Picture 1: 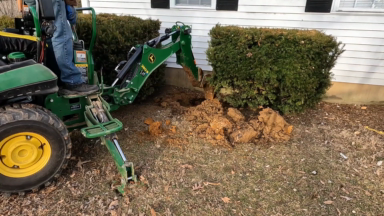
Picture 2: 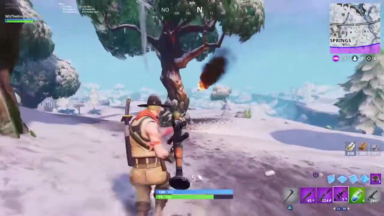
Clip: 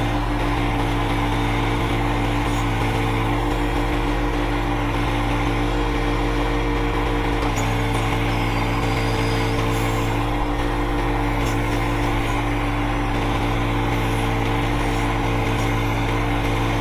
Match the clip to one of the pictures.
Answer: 1